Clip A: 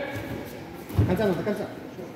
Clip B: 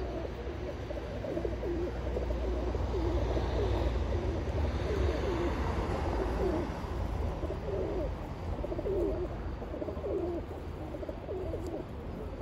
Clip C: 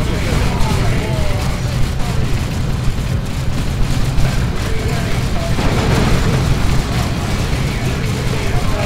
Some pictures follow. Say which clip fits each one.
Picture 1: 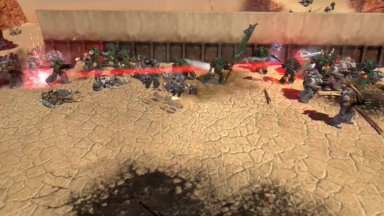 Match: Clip C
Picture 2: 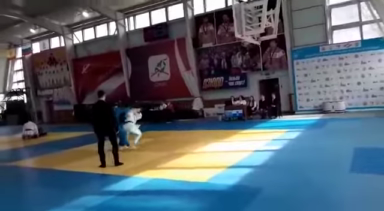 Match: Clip A